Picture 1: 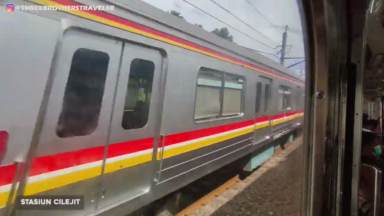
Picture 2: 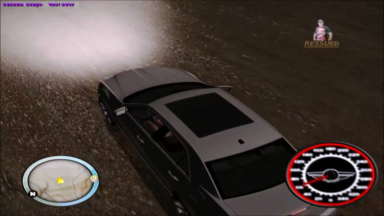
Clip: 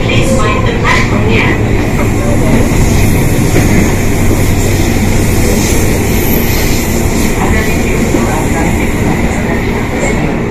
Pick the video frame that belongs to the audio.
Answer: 1